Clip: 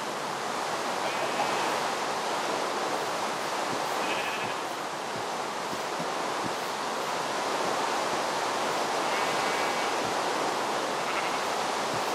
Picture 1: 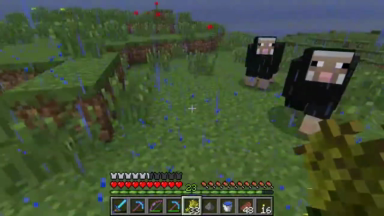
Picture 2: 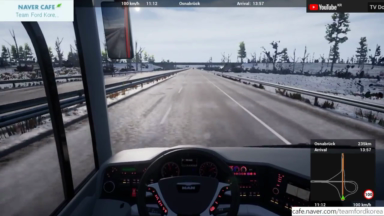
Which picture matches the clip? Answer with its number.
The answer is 1